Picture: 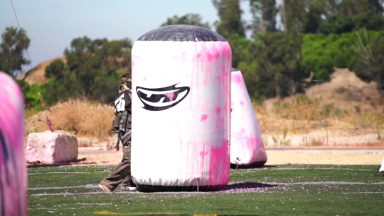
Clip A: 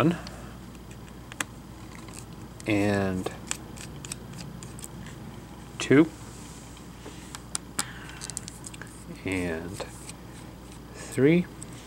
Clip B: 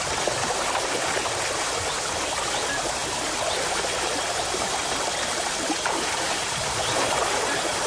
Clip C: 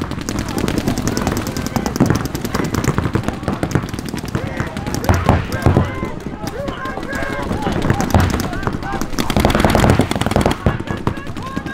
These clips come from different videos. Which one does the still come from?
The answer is C